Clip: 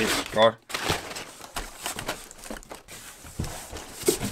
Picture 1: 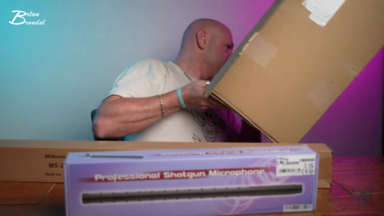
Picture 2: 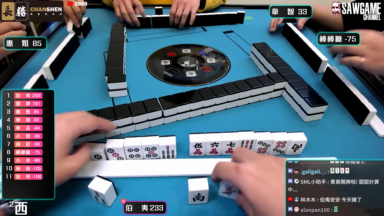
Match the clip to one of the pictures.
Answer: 1